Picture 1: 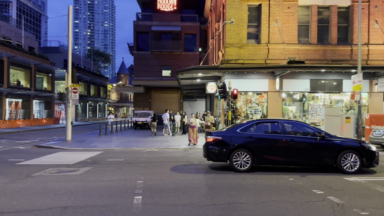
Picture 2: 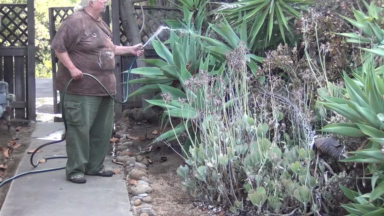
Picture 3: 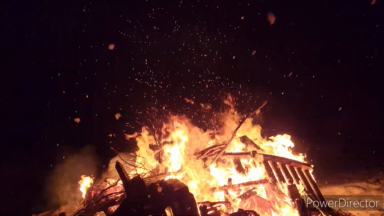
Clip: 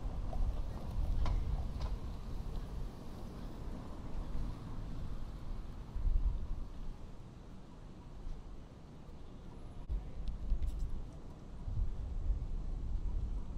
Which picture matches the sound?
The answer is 1